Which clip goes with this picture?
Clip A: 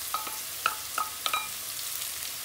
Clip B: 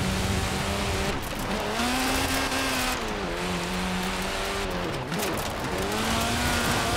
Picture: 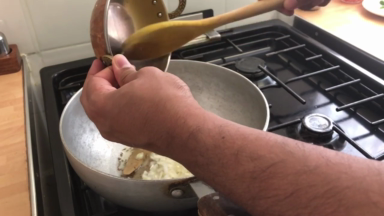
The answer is A